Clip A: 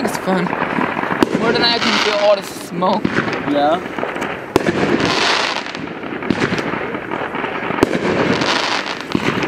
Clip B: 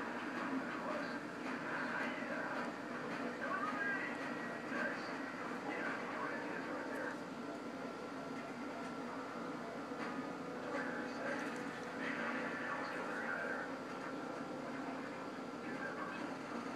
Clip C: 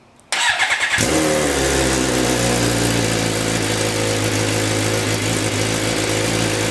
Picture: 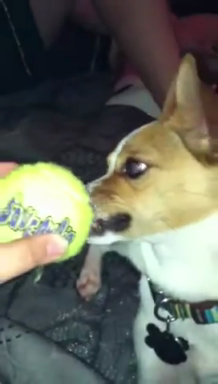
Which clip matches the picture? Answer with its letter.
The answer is B